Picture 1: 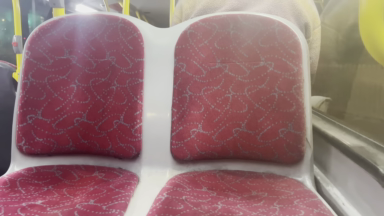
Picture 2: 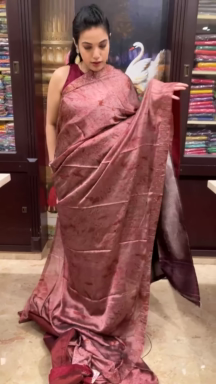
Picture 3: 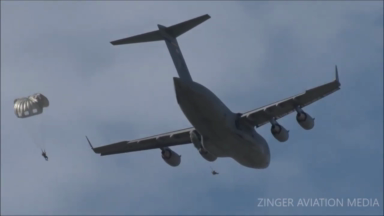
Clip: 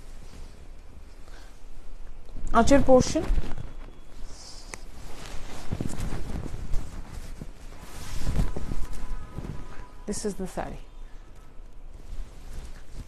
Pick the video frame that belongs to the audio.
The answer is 2